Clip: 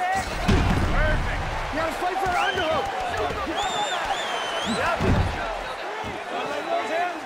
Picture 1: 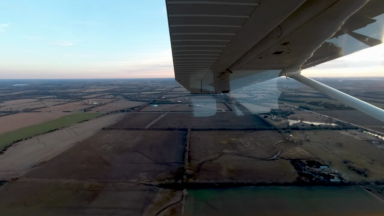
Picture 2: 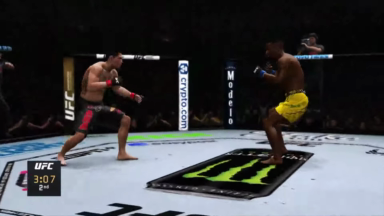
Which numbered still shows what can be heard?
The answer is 2